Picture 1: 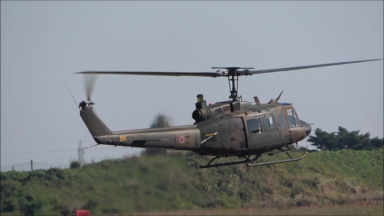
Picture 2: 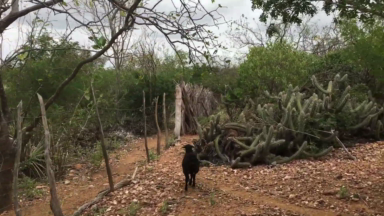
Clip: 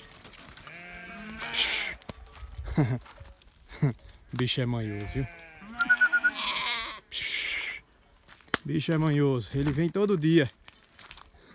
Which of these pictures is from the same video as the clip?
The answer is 2